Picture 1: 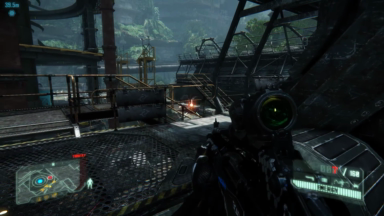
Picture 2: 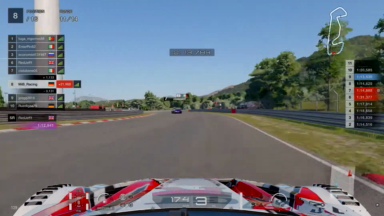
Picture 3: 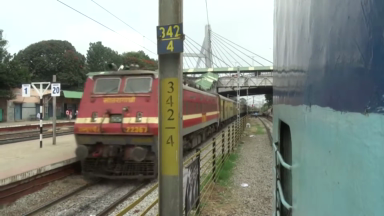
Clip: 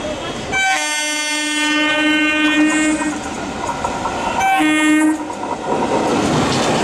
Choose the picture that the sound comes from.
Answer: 3